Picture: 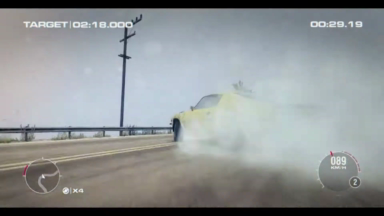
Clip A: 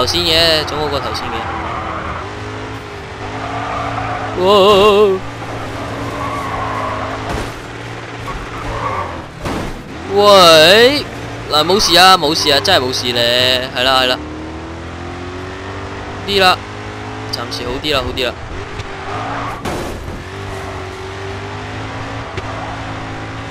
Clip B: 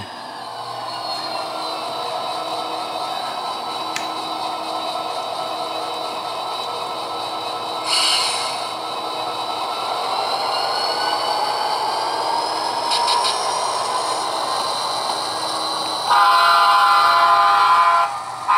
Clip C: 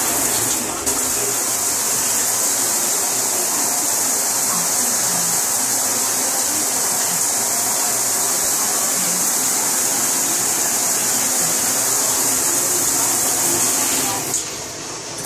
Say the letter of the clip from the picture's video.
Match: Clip A